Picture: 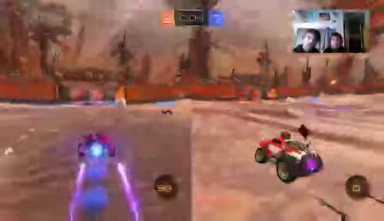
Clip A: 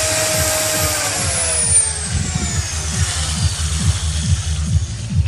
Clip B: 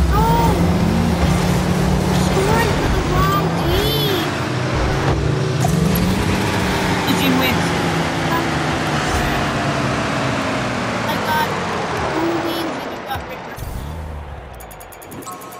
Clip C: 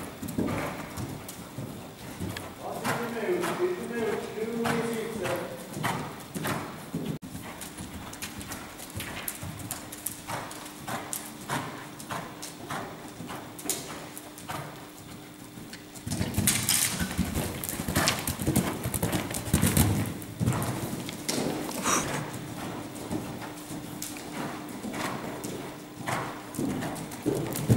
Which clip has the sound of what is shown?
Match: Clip B